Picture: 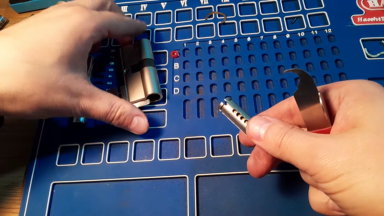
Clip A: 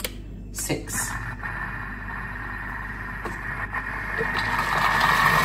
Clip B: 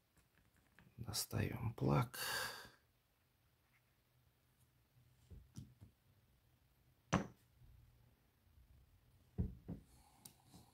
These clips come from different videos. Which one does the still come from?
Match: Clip B